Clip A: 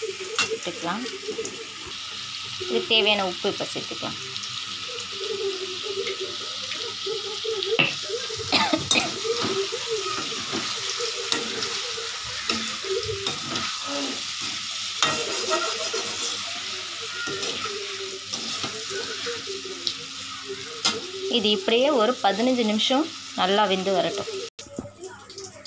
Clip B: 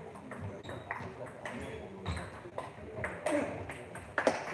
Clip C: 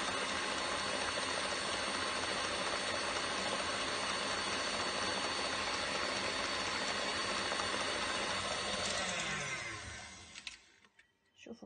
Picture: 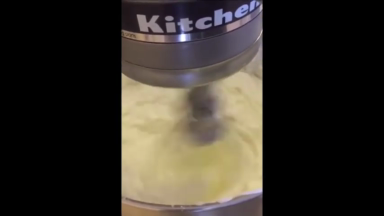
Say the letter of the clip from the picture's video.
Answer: C